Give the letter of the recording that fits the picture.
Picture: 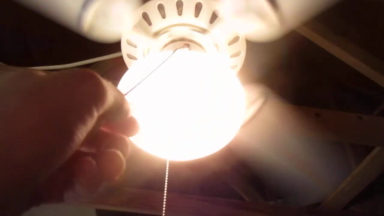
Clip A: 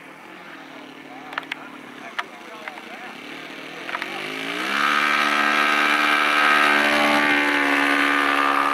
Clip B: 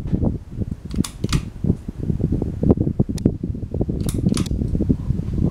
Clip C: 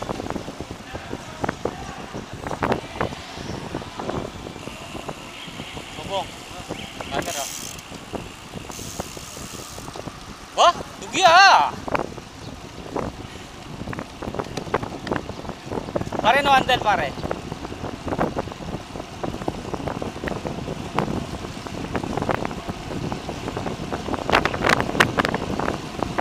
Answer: B